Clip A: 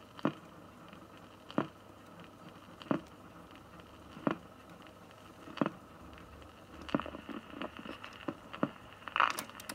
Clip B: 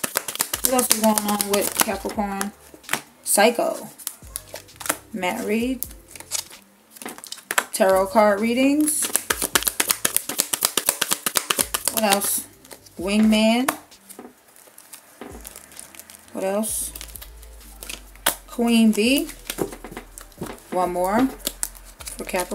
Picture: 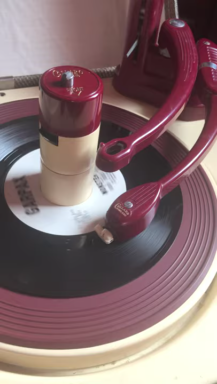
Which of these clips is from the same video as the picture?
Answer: A